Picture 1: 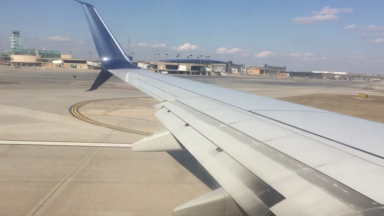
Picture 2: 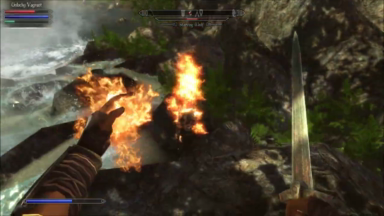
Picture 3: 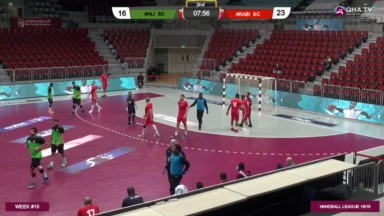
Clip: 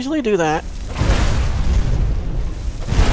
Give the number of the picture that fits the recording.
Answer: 2